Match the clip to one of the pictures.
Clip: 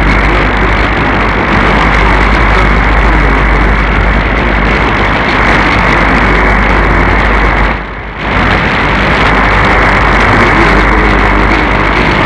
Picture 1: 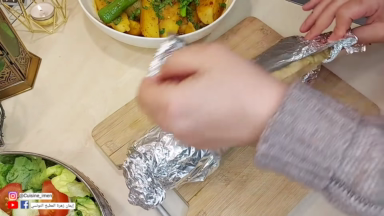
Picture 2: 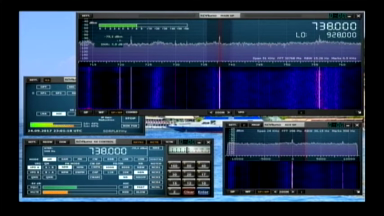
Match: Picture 2